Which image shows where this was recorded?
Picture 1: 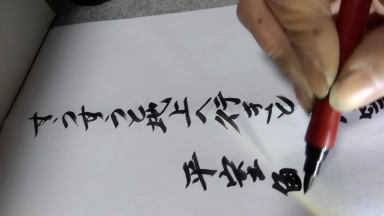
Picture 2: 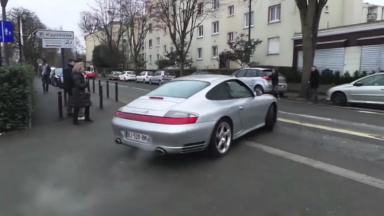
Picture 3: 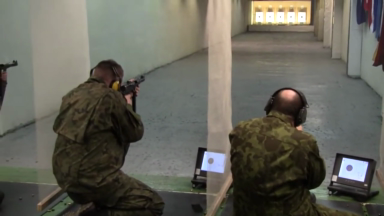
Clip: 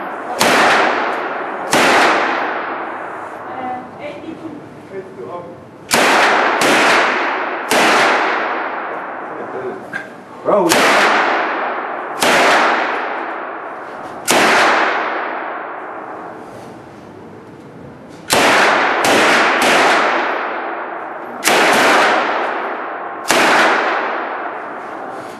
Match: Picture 3